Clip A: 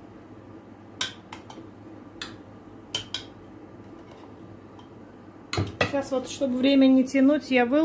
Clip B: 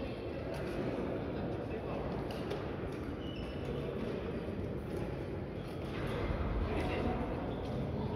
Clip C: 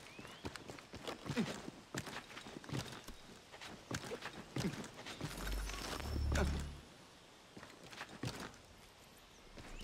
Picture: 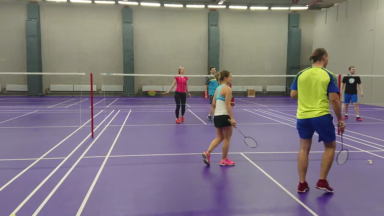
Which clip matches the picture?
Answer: B